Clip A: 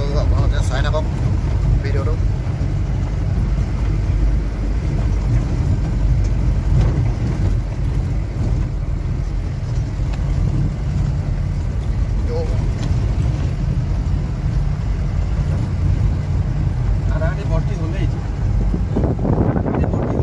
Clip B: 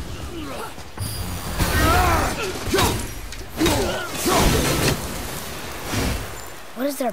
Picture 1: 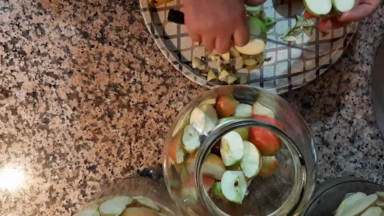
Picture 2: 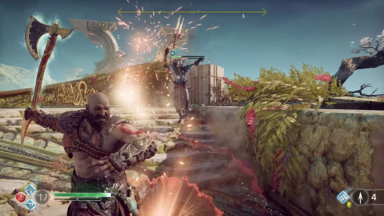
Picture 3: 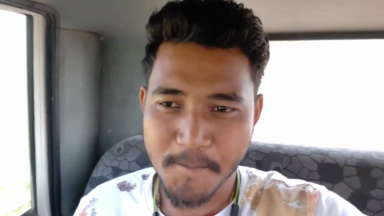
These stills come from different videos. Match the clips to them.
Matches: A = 3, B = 2